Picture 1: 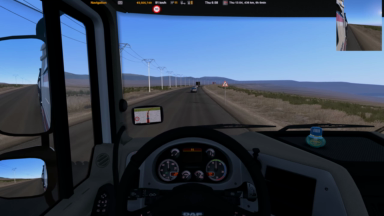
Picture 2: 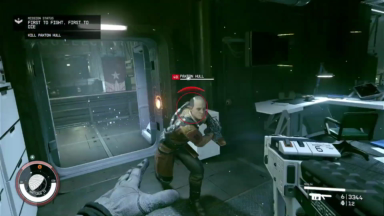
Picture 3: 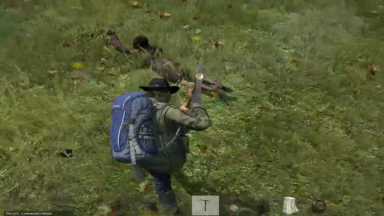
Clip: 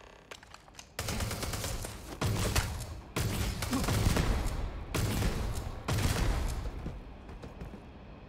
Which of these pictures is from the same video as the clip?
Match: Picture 2